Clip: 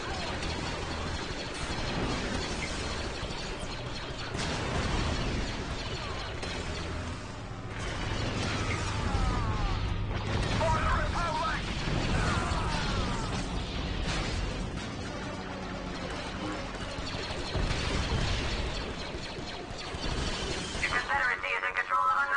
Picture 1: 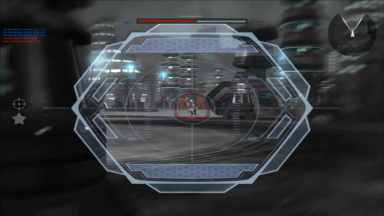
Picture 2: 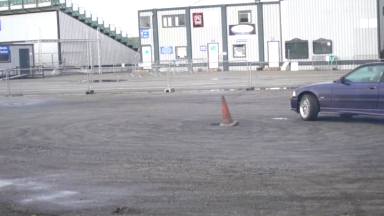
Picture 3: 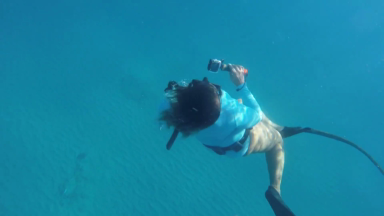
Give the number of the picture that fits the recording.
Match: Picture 1